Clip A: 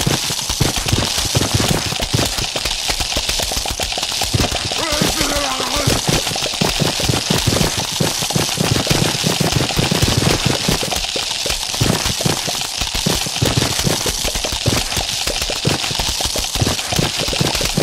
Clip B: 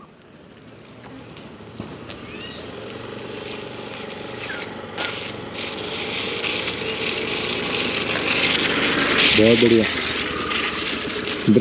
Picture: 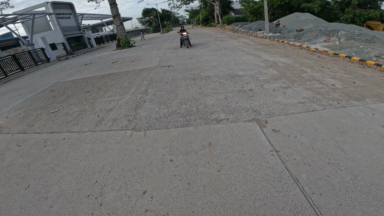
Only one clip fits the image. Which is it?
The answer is B